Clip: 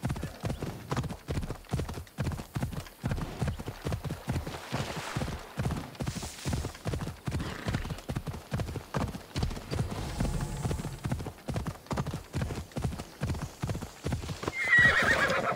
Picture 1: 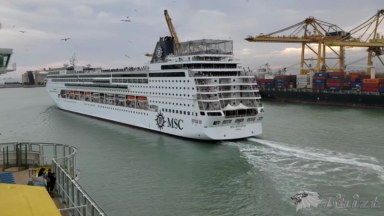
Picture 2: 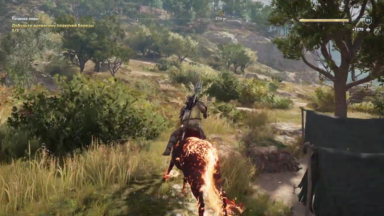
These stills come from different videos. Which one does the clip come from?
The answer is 2